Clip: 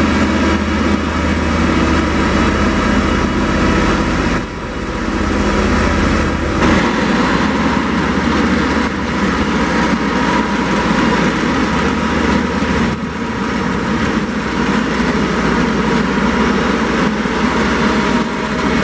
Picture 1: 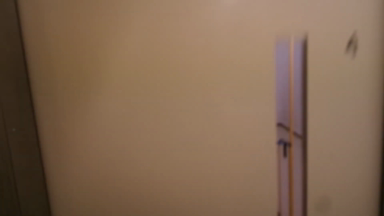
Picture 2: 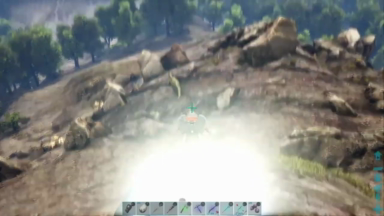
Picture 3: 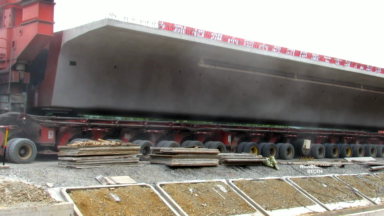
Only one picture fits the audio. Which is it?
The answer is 3